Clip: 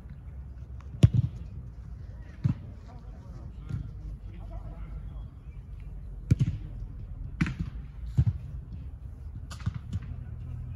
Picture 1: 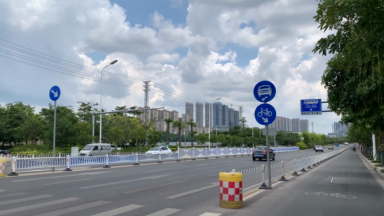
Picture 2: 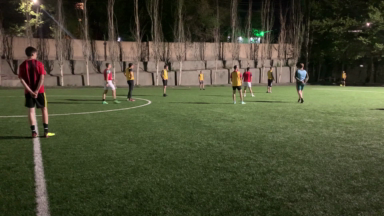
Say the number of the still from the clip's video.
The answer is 2